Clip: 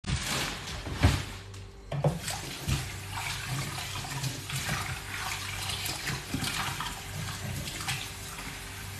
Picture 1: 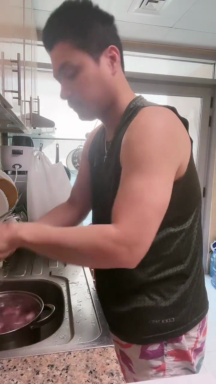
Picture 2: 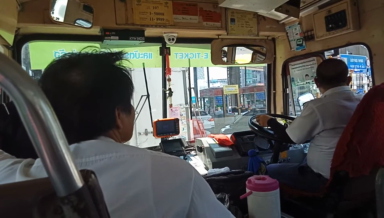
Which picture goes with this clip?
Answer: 1